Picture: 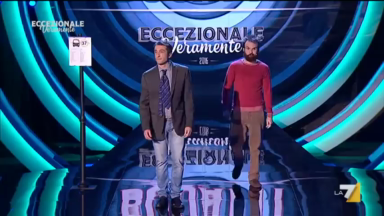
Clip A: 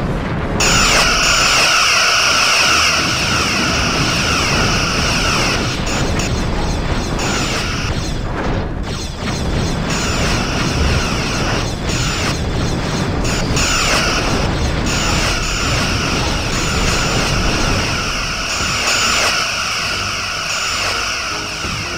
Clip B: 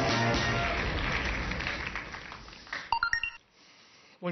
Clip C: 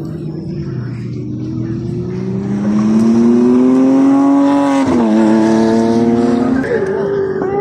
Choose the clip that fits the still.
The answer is B